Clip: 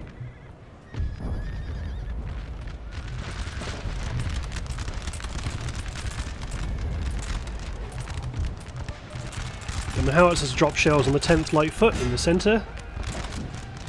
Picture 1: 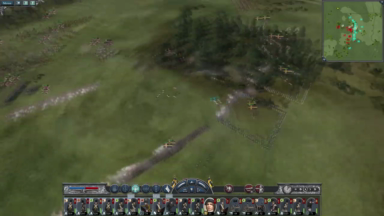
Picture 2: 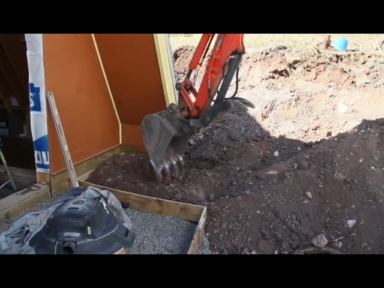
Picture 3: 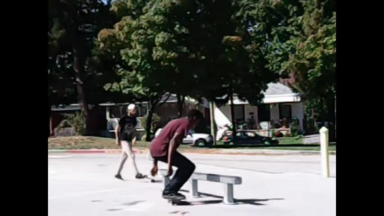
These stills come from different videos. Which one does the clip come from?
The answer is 1